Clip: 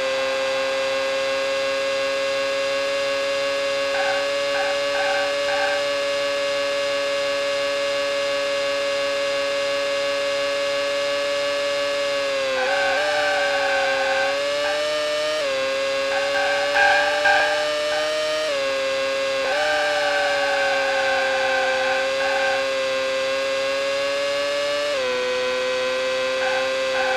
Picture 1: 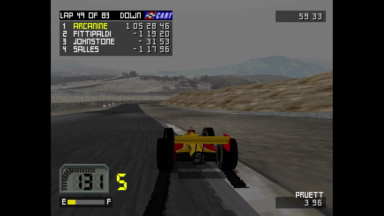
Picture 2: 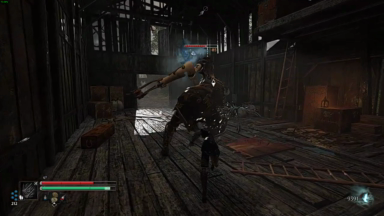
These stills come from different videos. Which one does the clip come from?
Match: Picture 1